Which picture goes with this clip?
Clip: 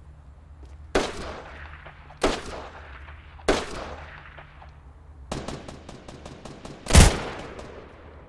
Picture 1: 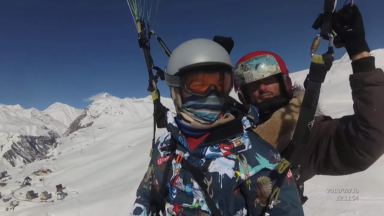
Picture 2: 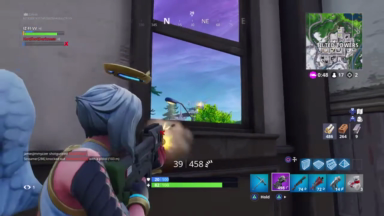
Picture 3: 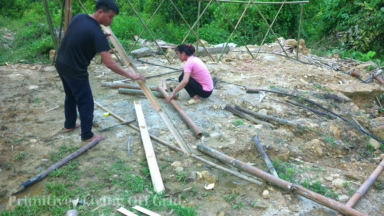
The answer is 2